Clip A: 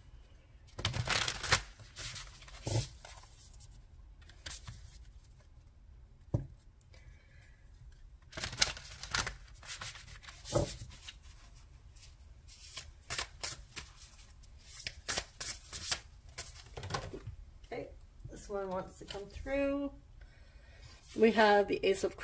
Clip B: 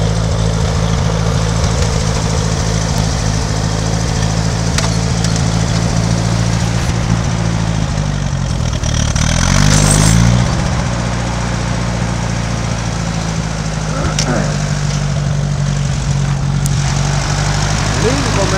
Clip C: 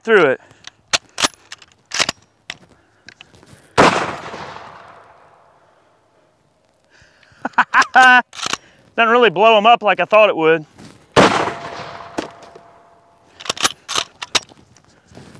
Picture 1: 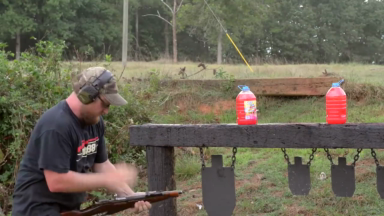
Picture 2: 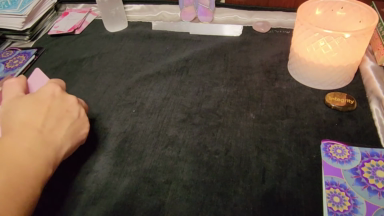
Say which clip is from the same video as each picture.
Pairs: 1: C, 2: A